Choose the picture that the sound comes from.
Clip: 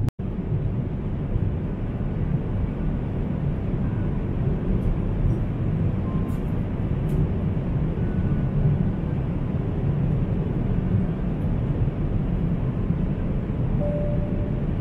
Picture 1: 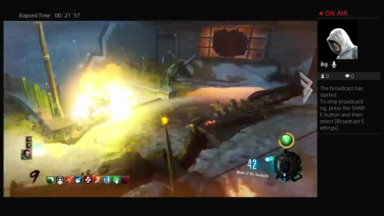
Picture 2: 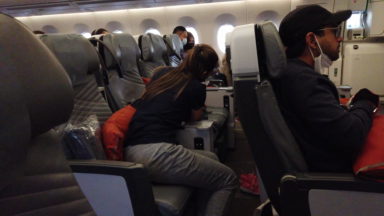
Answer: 2